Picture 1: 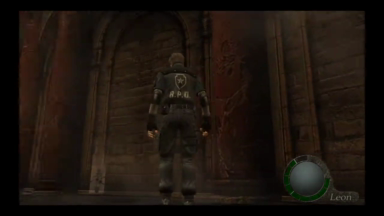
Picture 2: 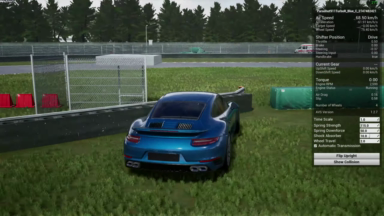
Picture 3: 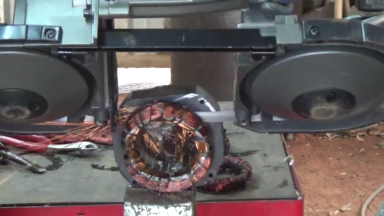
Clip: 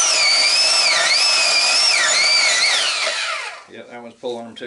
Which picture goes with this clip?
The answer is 3